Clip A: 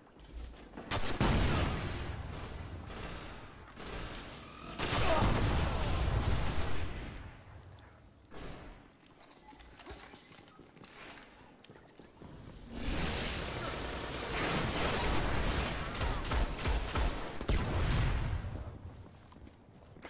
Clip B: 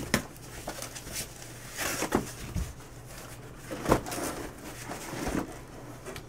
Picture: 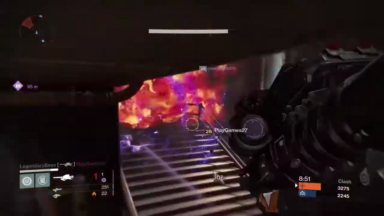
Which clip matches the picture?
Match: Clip A